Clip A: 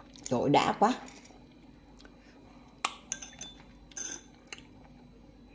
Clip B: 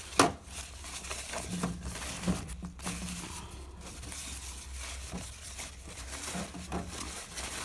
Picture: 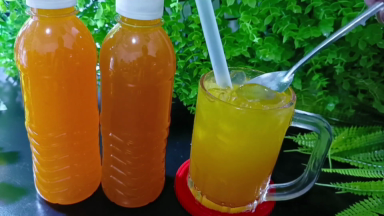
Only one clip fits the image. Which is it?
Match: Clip A